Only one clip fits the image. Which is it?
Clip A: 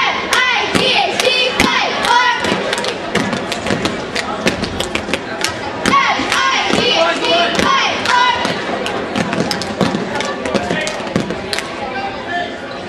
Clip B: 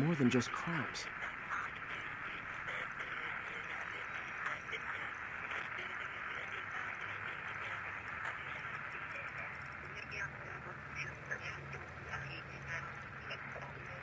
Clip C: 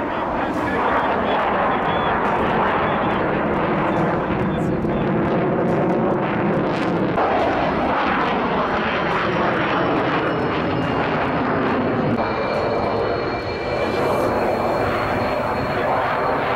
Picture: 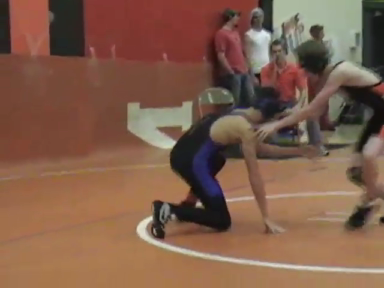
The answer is A